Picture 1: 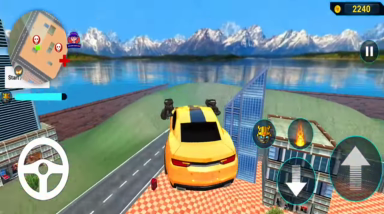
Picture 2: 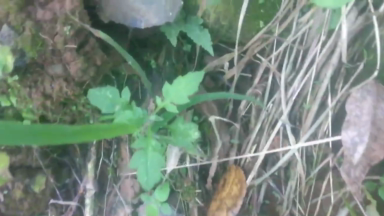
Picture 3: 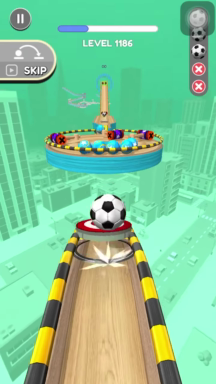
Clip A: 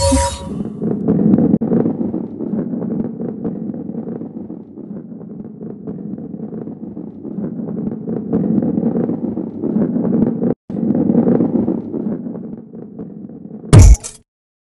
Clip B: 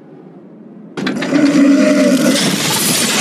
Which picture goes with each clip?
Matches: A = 3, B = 1